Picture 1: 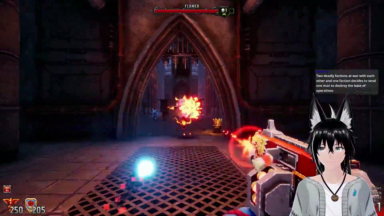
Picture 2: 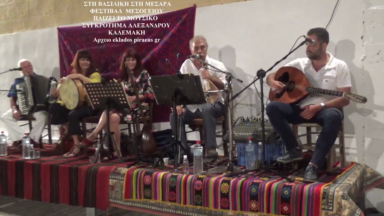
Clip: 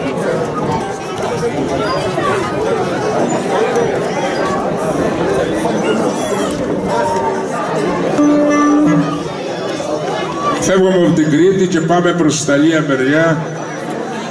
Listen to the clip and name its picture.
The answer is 2